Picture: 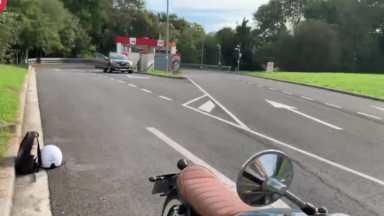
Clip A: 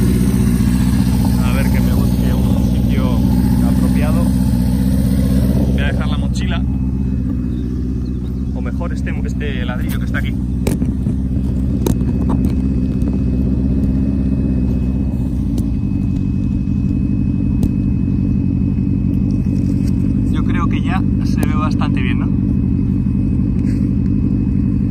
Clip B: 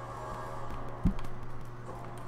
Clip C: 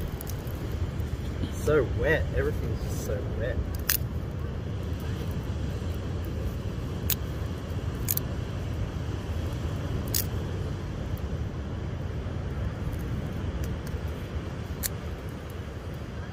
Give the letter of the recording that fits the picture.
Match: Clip A